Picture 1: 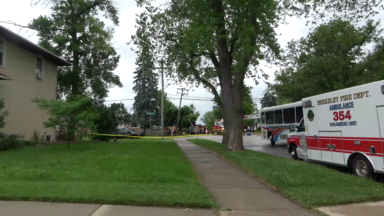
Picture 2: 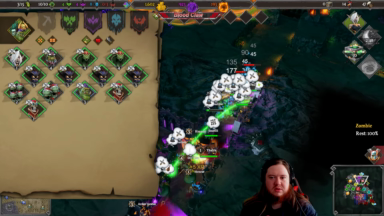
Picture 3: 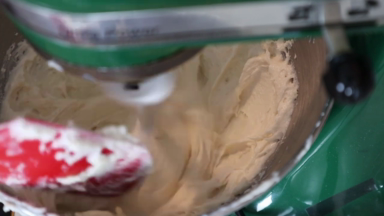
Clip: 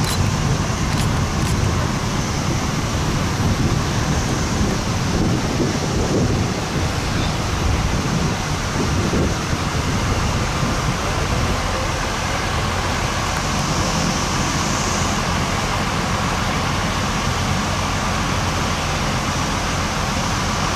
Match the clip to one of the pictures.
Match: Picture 1